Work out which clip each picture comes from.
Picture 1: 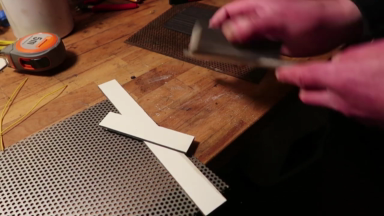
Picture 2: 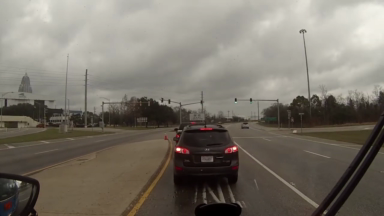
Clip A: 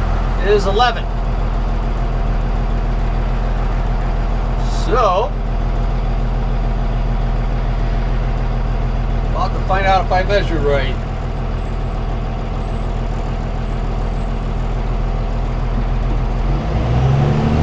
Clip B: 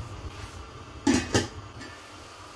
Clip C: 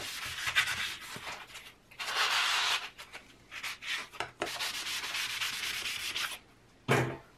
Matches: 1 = C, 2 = A